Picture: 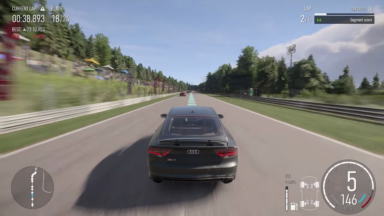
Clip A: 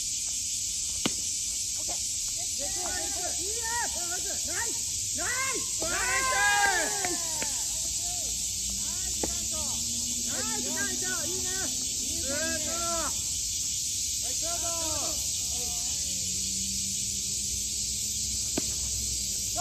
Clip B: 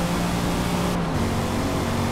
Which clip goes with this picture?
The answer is B